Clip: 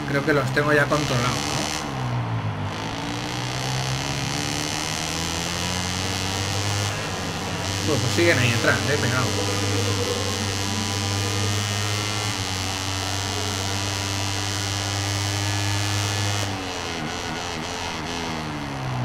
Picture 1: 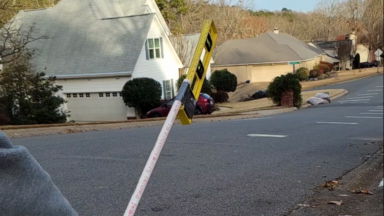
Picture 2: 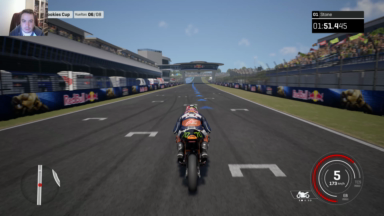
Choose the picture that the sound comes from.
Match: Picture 2